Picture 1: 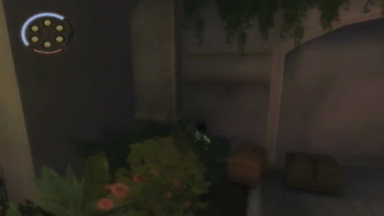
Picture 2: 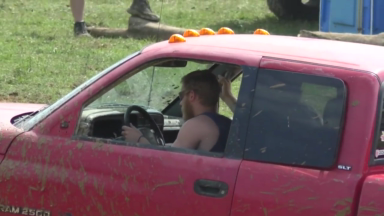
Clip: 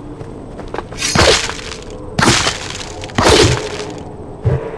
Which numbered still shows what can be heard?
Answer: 1